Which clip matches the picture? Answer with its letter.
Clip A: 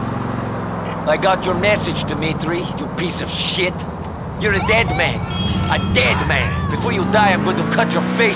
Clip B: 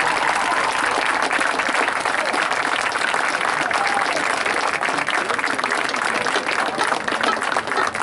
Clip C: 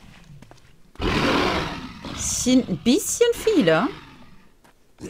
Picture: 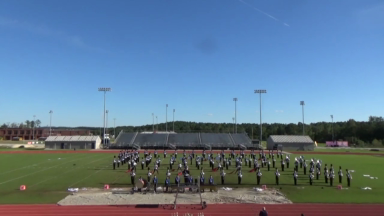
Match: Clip B